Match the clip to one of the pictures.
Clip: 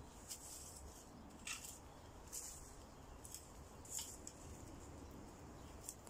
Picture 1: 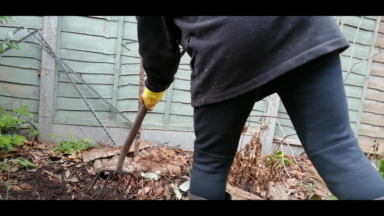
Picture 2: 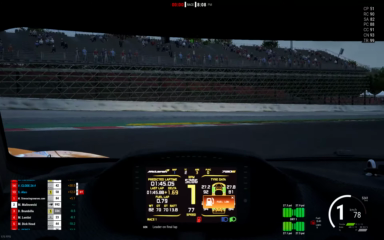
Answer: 1